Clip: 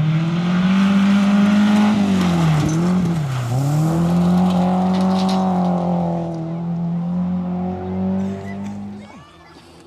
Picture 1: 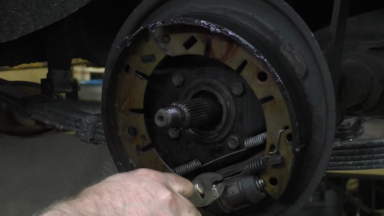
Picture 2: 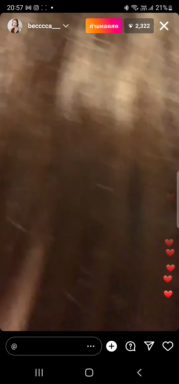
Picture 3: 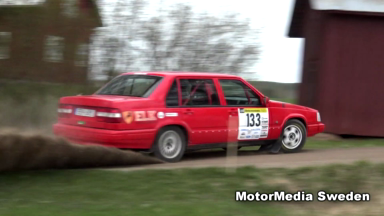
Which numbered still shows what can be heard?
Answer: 3